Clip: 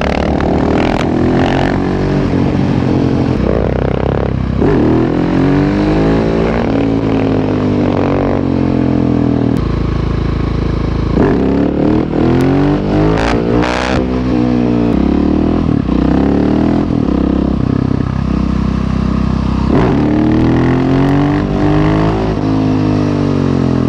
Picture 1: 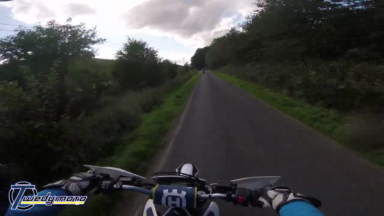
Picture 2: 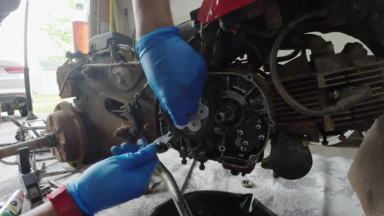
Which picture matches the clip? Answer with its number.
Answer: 1